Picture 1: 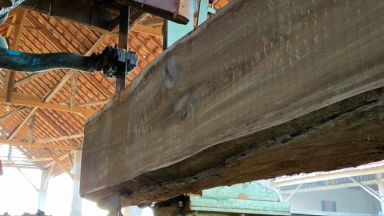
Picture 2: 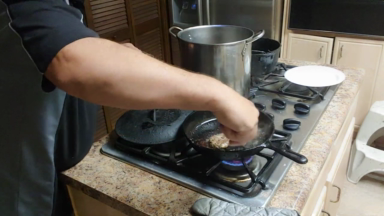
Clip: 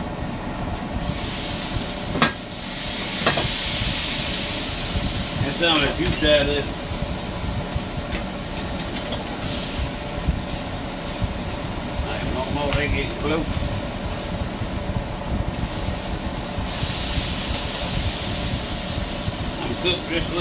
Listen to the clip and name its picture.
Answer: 2